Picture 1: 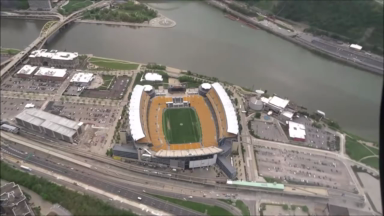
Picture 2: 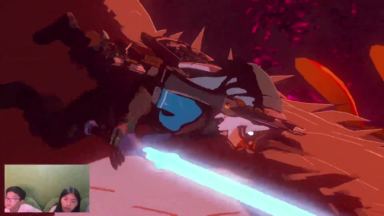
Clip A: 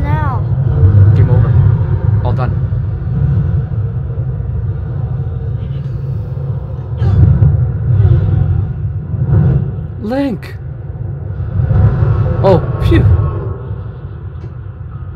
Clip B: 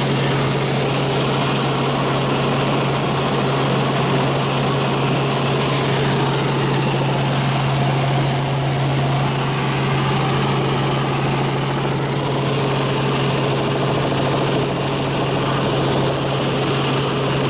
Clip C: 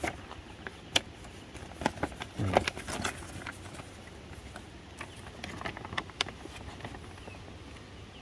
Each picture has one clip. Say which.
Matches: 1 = B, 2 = A